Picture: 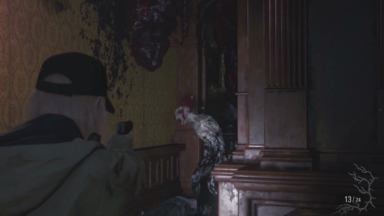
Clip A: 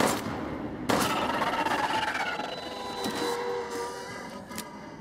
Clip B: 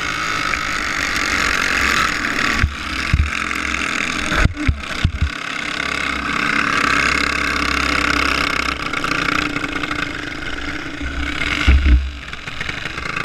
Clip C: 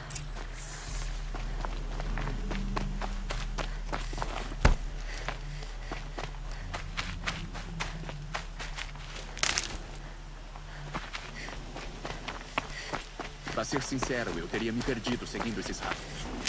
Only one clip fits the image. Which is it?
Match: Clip A